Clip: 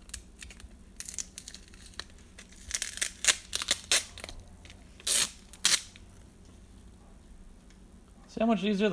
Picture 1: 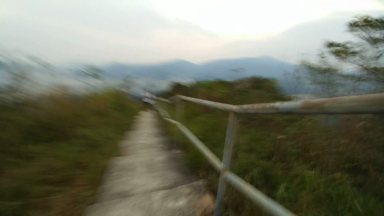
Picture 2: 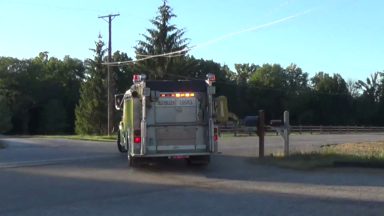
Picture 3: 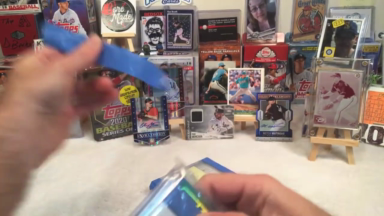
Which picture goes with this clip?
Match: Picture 3